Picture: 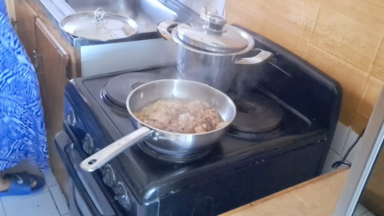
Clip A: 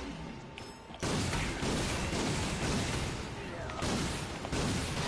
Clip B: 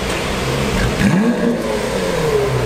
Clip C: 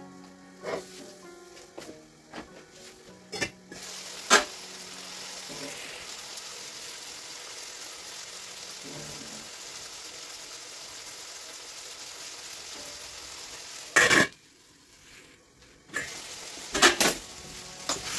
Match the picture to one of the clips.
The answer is C